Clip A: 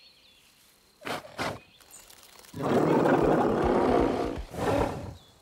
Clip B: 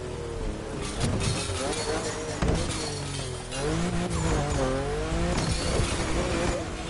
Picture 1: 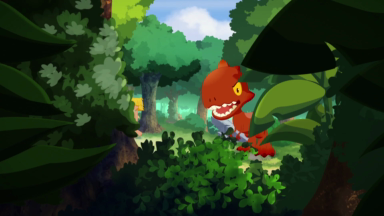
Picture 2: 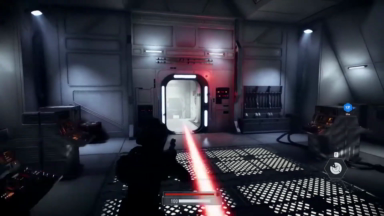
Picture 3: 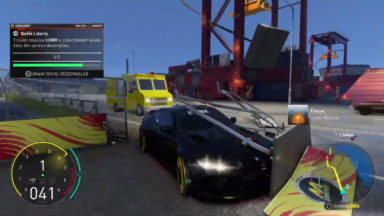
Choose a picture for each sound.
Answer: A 1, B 3